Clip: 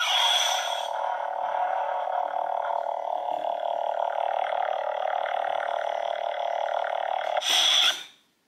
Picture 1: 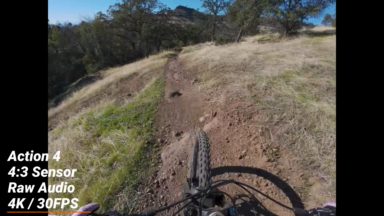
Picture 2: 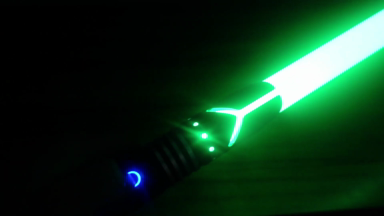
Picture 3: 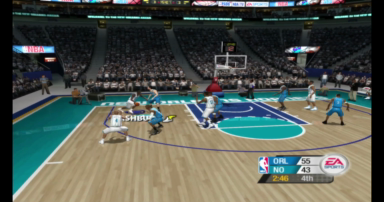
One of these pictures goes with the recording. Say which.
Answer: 2